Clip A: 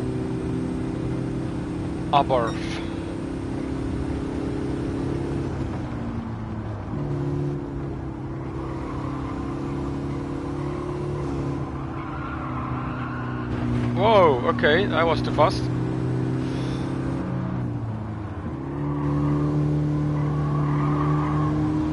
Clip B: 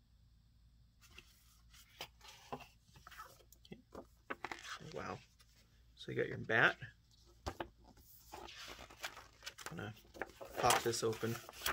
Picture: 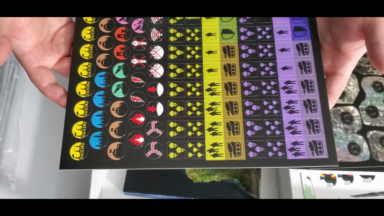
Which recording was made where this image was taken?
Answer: B